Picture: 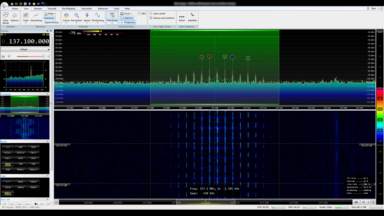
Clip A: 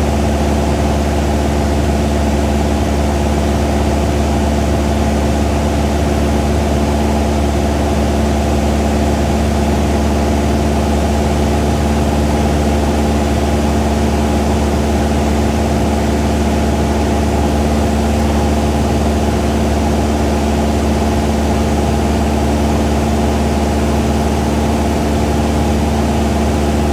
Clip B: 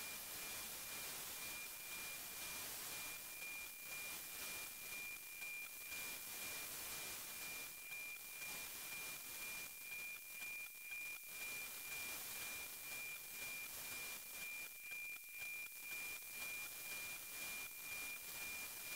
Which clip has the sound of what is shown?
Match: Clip B